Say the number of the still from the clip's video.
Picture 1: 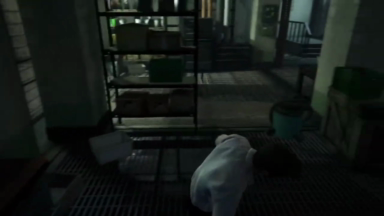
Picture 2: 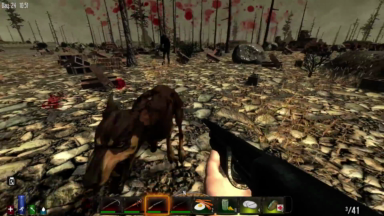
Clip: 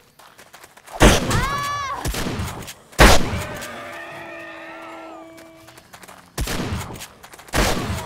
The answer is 2